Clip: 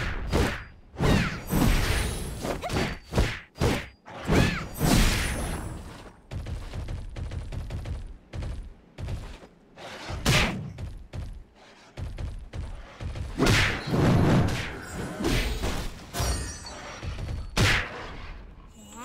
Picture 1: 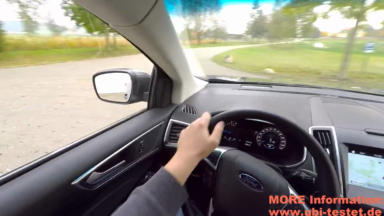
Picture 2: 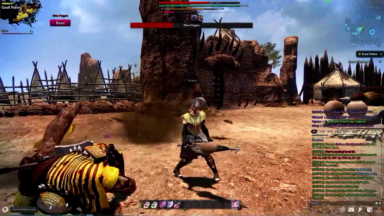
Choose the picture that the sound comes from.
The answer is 2